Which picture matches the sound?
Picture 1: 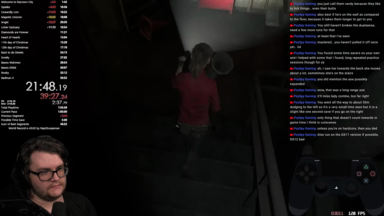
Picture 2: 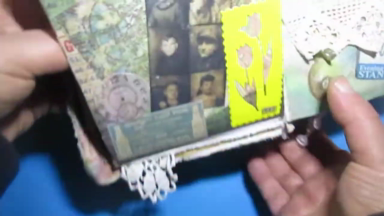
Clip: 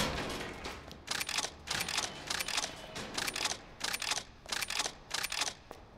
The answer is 1